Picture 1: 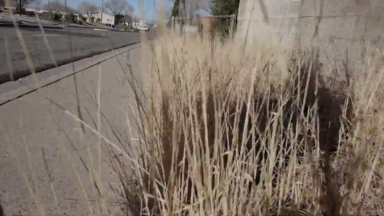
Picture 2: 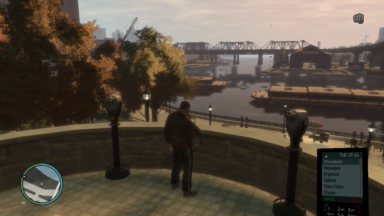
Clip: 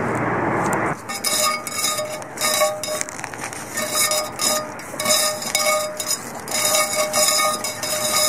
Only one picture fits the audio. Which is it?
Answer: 1